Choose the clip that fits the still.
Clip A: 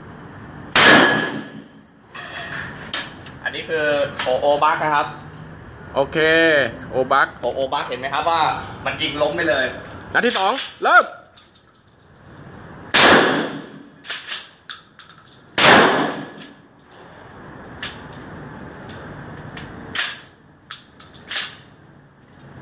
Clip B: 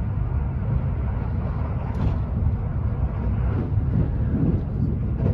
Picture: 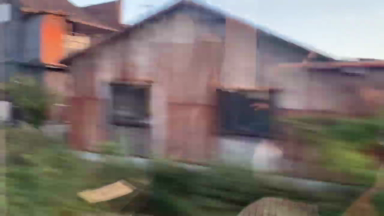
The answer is B